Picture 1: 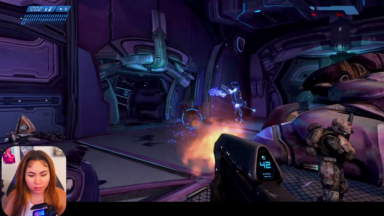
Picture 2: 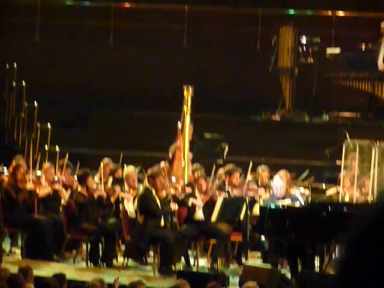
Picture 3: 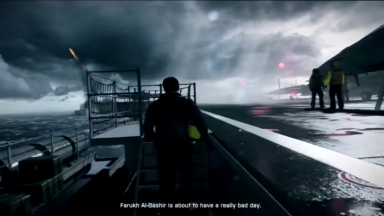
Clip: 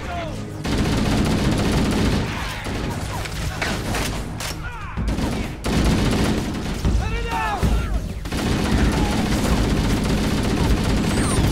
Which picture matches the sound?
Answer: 1